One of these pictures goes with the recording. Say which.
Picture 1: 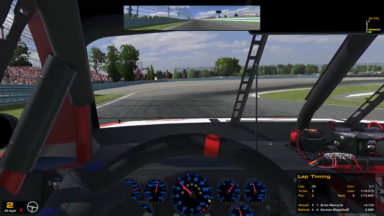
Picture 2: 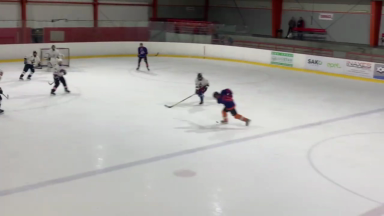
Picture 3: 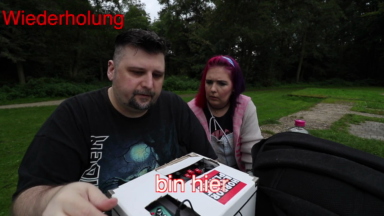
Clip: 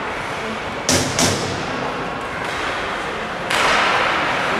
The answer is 2